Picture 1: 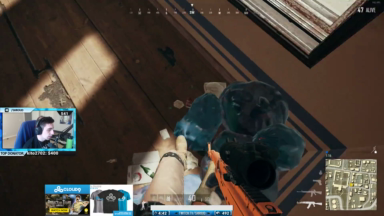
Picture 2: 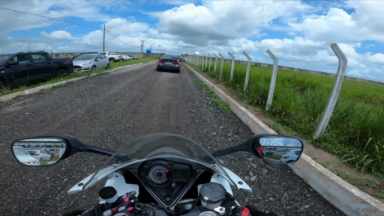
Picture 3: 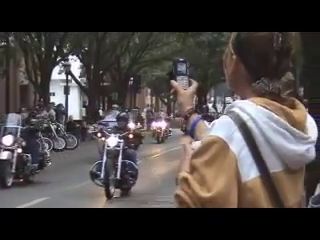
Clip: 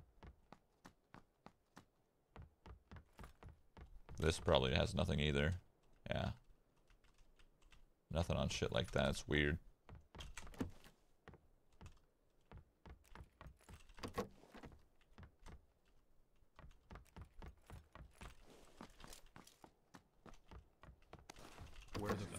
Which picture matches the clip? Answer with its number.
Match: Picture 1